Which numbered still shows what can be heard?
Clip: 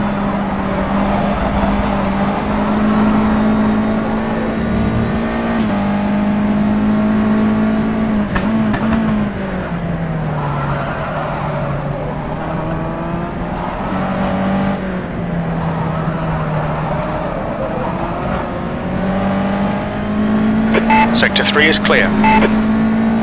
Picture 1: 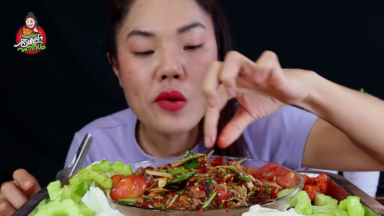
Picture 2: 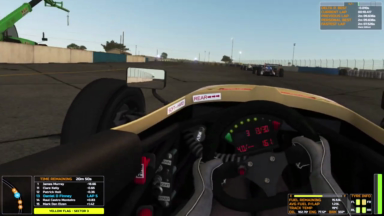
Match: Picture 2